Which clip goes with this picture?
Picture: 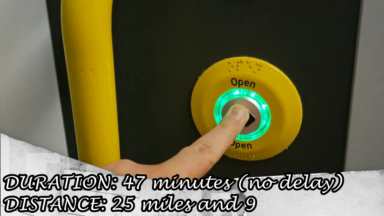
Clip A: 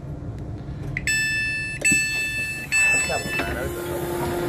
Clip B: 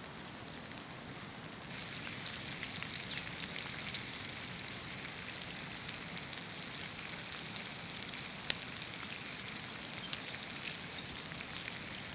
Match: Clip A